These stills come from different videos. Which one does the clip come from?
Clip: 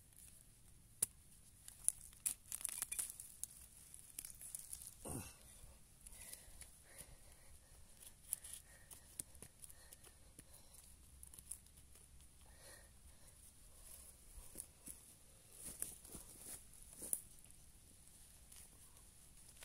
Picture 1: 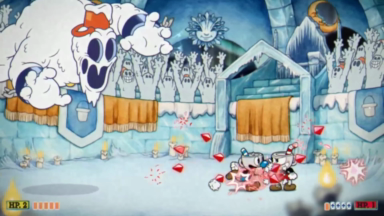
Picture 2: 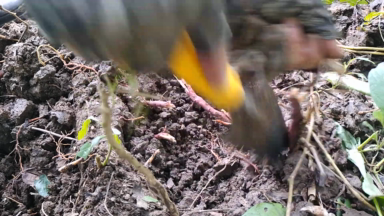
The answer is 2